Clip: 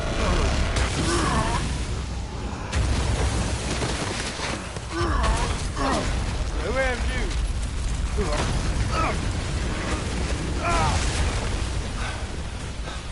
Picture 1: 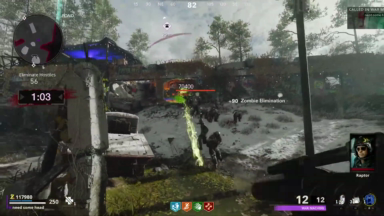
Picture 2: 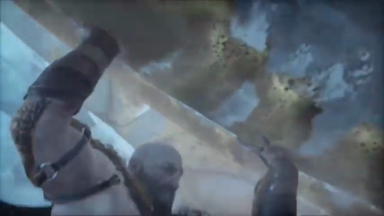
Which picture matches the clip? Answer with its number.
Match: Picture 2